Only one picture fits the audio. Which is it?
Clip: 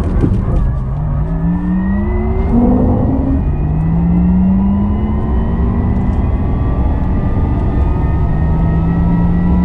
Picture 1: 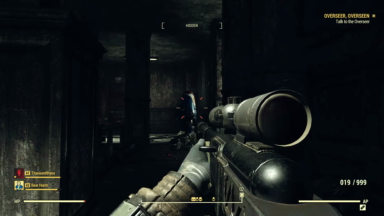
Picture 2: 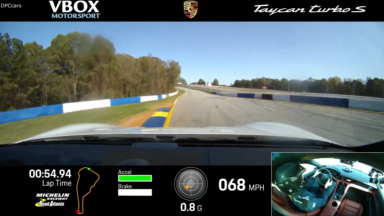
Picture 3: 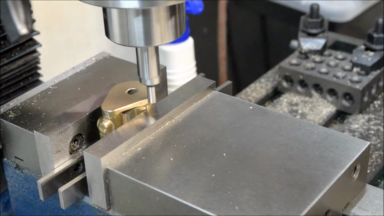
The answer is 2